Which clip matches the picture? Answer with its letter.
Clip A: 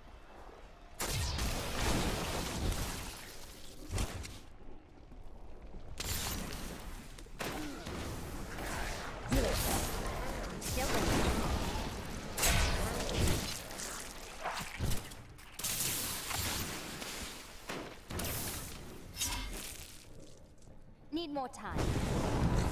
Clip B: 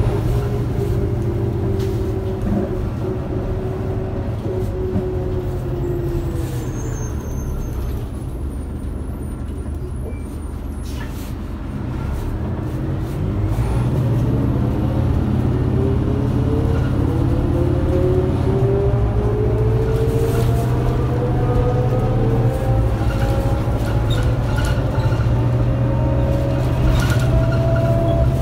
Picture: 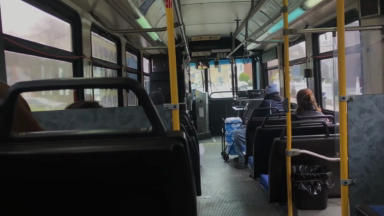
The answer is B